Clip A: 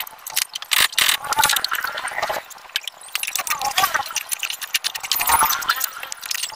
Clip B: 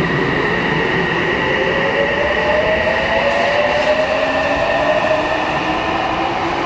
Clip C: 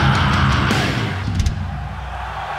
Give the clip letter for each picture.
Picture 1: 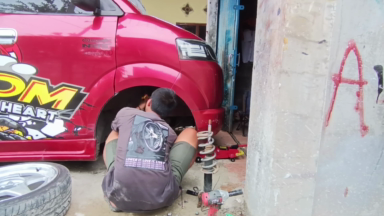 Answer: A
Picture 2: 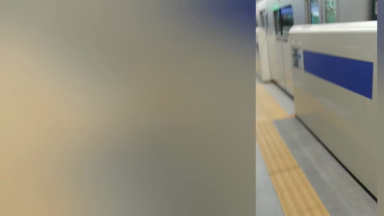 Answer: B